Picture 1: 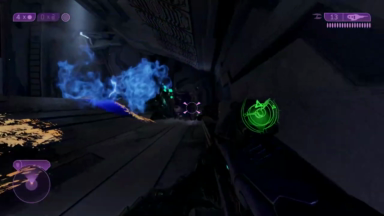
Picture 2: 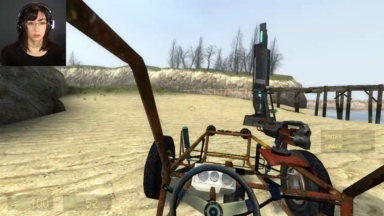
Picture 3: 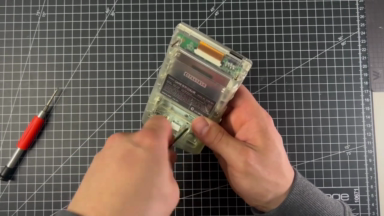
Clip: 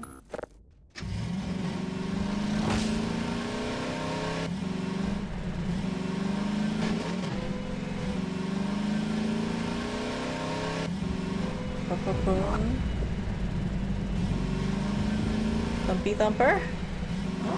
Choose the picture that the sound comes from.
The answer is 2